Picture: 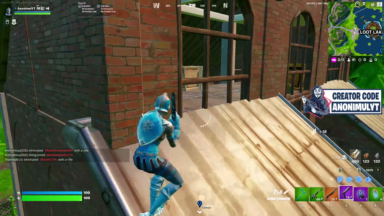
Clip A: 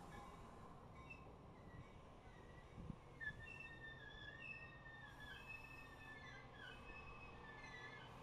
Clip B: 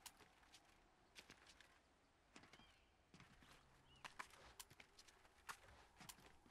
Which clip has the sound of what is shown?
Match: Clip B